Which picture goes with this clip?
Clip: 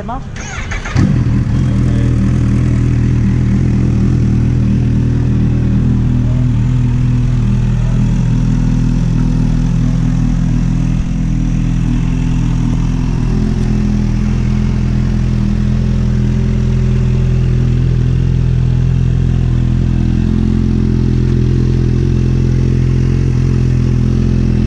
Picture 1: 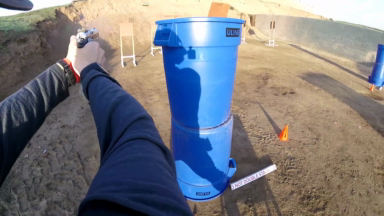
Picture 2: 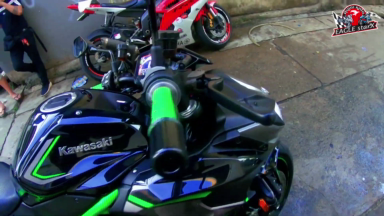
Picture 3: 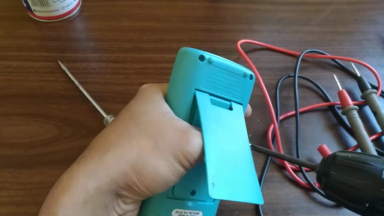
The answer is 2